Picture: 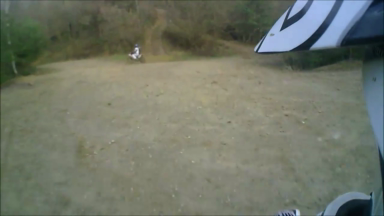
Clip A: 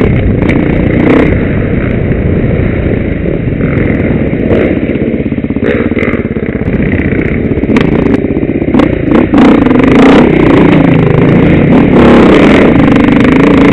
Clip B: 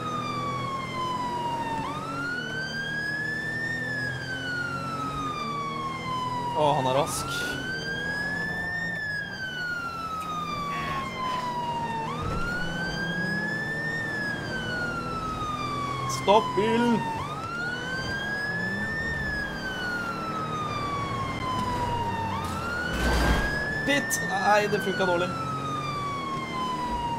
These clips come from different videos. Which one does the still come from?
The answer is A